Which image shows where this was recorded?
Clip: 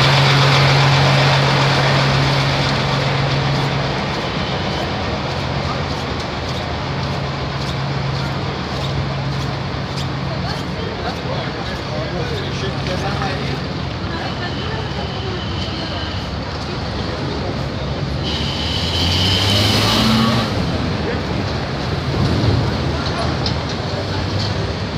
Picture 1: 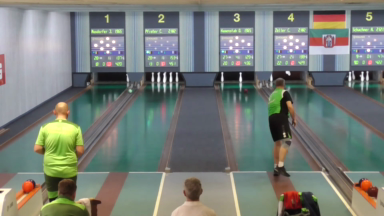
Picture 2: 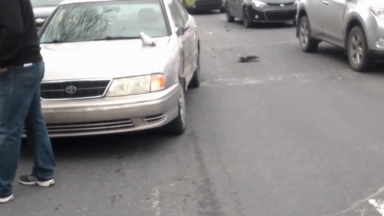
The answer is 2